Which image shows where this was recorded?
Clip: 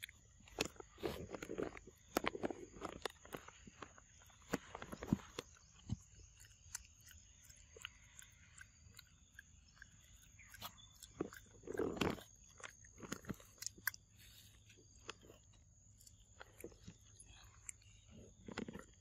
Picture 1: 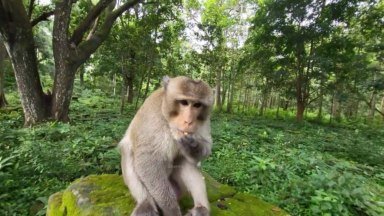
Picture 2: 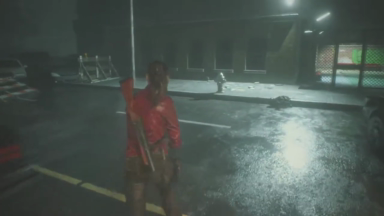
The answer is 1